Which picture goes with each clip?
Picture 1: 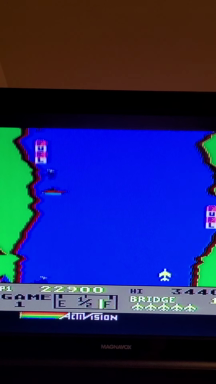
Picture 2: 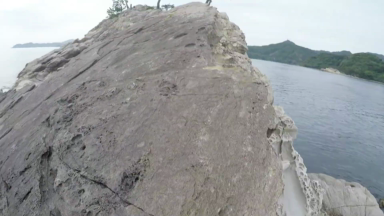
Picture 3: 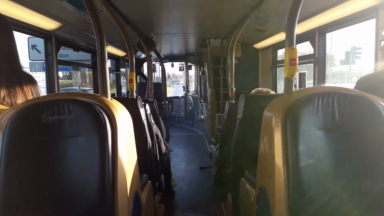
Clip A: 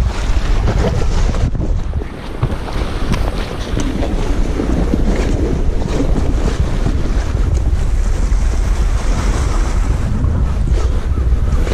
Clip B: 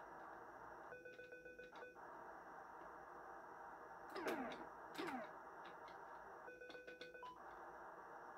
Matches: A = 2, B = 1